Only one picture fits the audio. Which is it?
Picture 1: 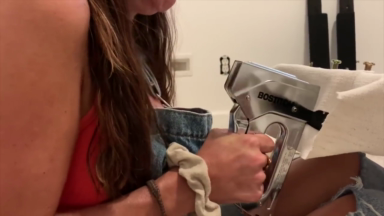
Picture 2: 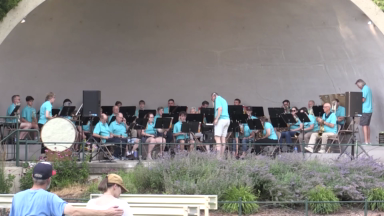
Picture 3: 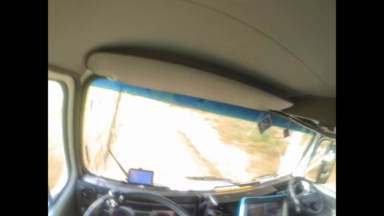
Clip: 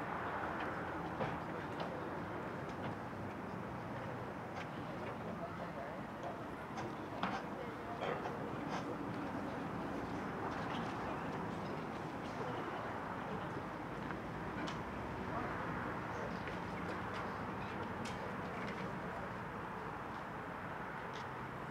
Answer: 2